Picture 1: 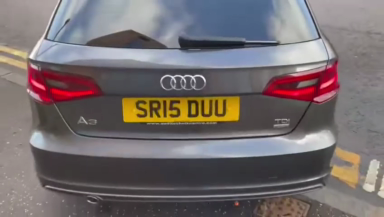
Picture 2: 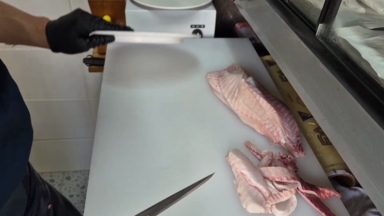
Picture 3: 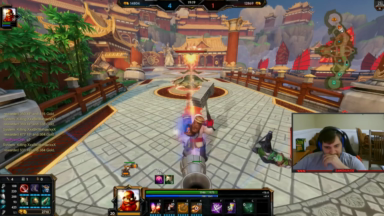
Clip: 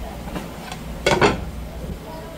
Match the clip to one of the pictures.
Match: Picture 2